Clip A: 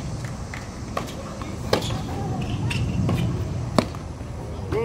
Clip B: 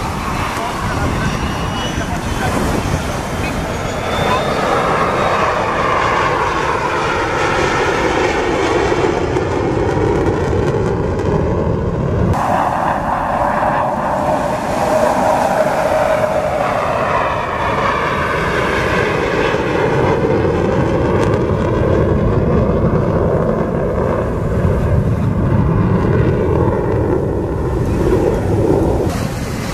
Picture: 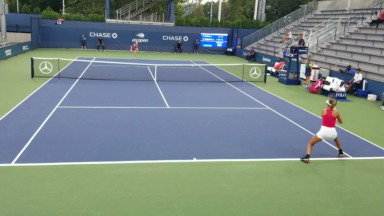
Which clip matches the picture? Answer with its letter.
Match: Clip A